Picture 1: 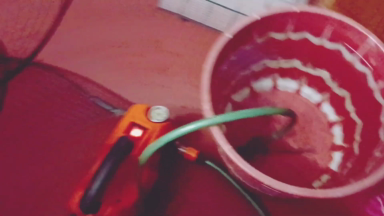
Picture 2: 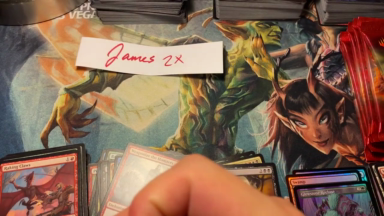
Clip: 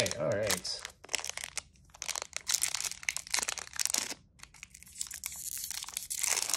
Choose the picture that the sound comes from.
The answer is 2